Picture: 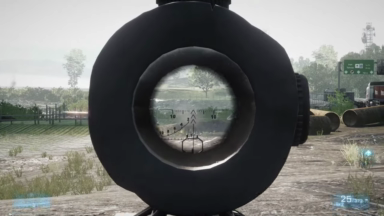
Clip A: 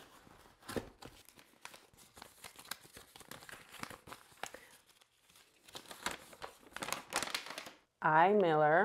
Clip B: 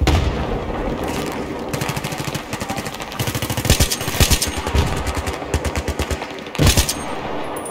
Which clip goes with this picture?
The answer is B